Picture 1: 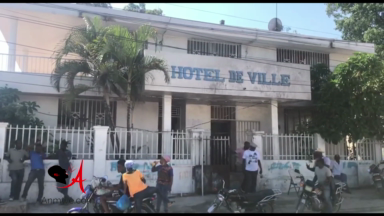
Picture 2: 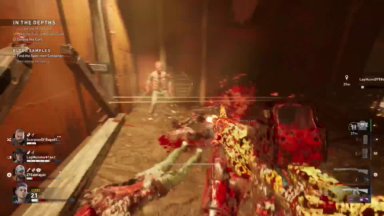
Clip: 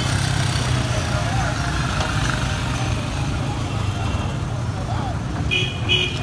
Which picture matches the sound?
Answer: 1